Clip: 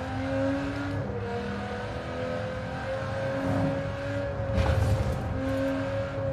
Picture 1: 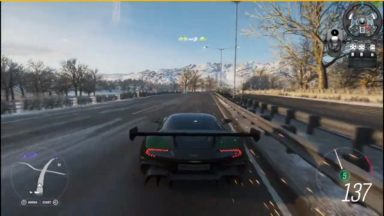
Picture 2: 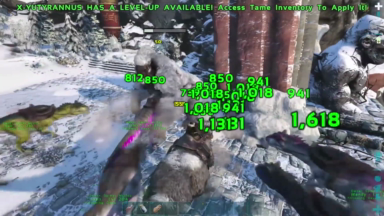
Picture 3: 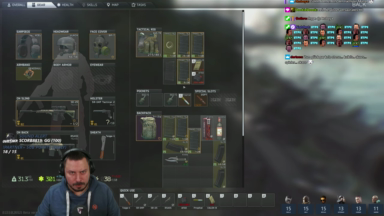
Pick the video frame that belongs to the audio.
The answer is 1